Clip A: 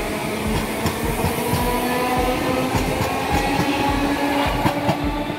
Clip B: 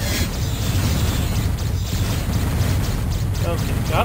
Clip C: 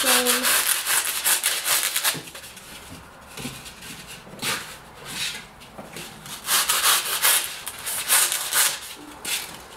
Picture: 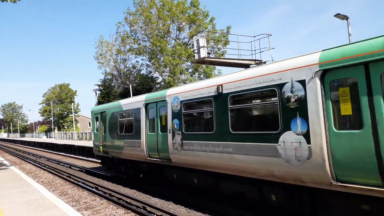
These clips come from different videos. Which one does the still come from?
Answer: A